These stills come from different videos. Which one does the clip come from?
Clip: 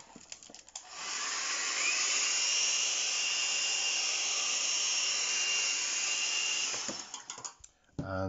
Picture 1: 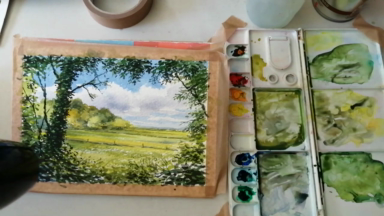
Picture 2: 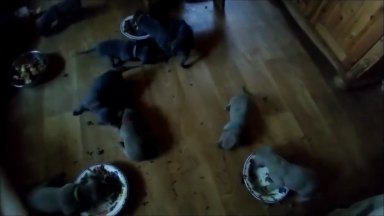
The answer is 1